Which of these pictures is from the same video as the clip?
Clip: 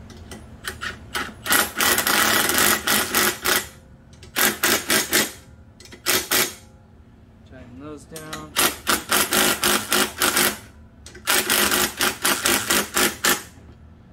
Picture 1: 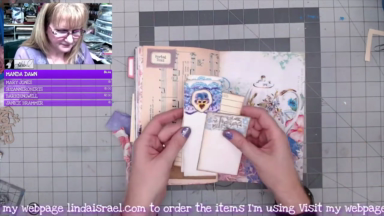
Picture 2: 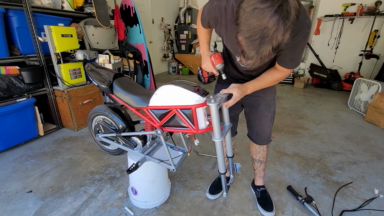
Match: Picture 2